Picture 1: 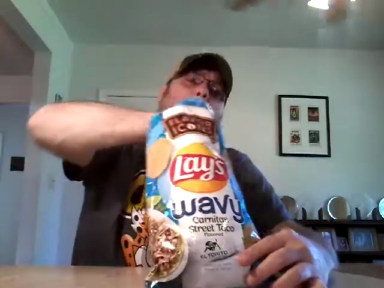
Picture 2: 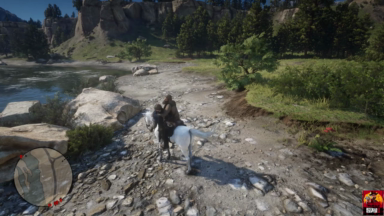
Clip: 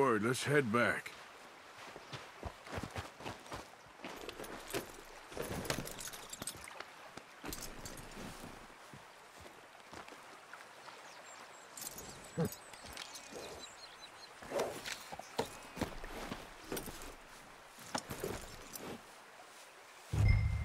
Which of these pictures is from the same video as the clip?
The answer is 2